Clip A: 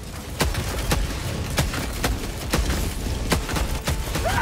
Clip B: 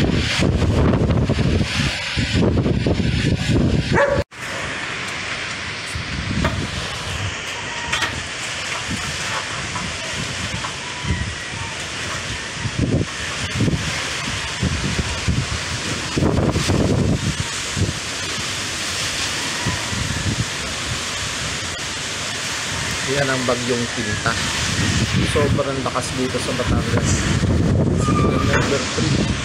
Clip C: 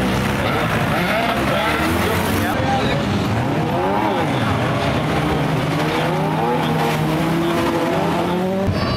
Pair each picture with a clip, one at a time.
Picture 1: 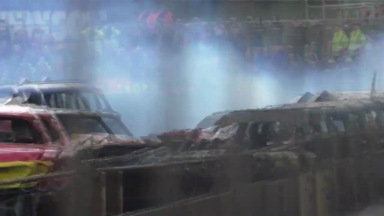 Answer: C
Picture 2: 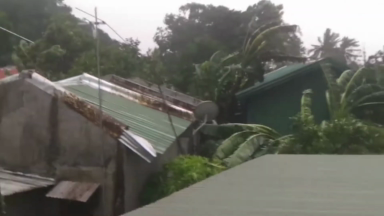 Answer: B